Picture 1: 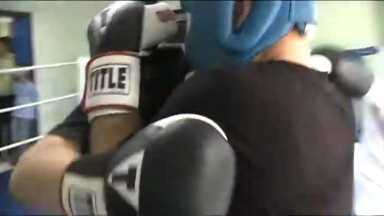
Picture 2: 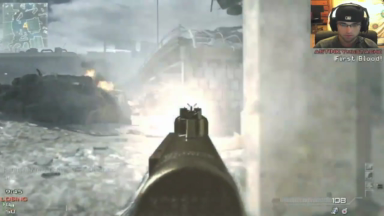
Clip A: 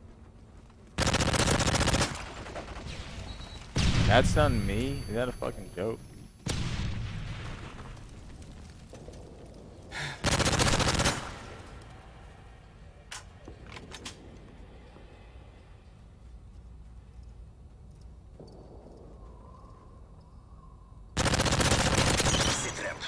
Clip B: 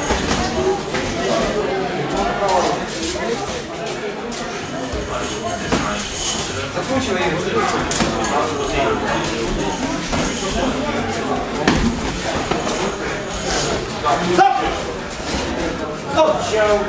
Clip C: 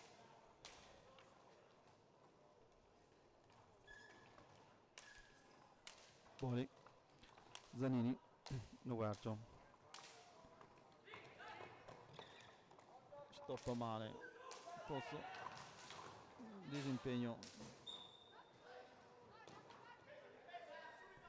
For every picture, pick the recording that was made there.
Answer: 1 B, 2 A